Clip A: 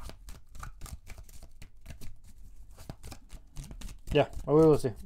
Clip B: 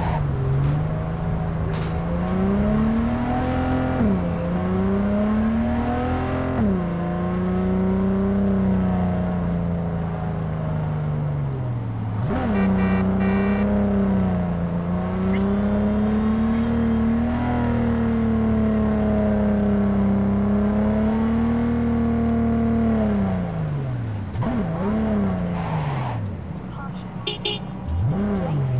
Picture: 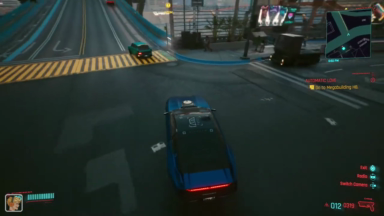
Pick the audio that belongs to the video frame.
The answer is B